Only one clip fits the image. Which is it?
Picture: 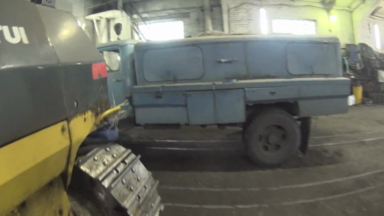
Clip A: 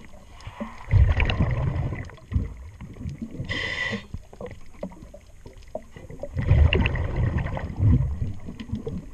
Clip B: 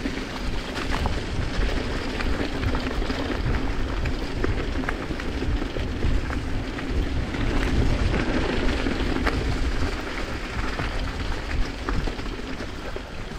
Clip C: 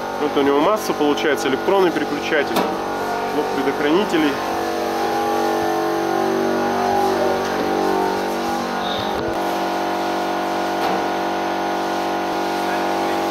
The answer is C